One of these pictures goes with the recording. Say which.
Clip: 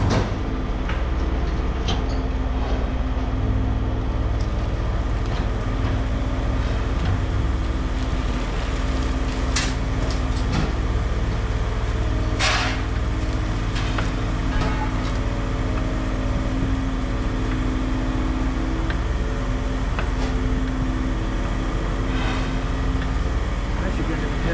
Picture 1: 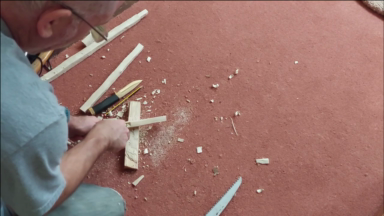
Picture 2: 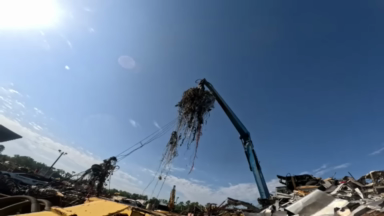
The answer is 2